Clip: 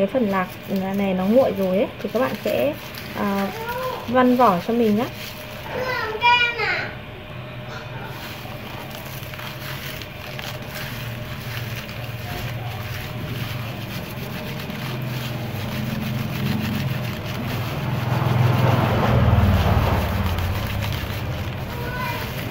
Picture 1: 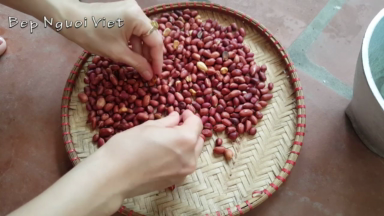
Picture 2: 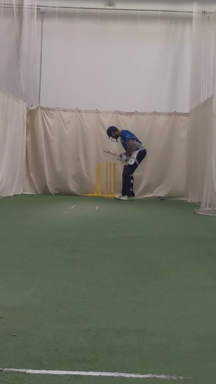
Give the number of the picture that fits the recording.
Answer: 1